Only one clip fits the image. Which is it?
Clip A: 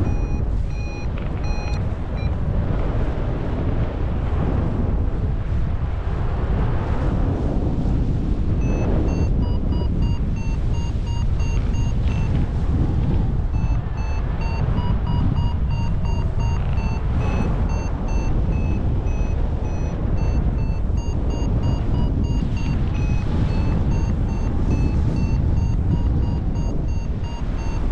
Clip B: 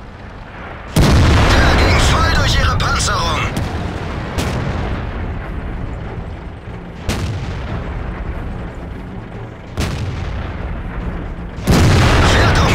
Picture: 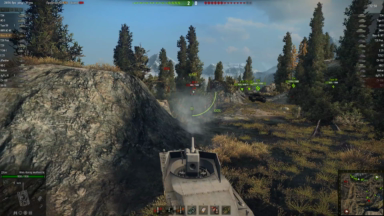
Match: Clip B